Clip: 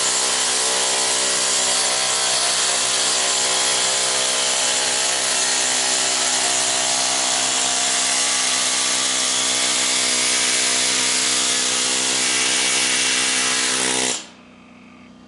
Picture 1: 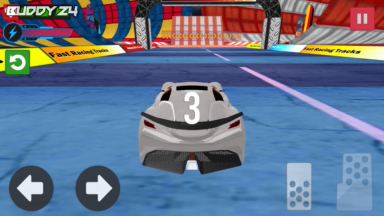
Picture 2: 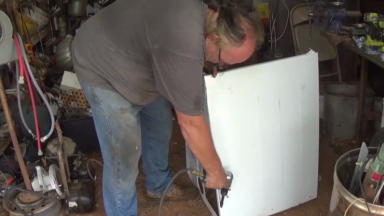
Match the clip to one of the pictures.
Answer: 2